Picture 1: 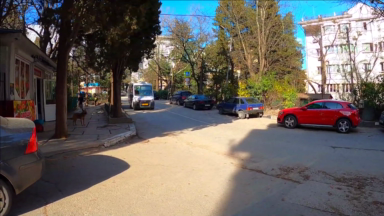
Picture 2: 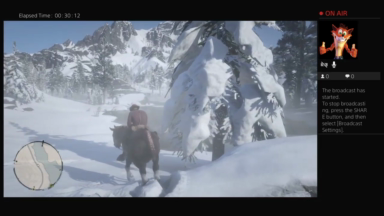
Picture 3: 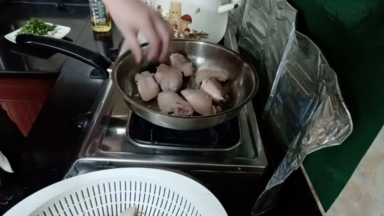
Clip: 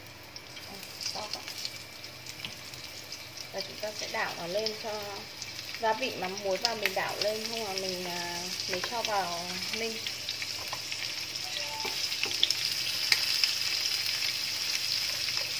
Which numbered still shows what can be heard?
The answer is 3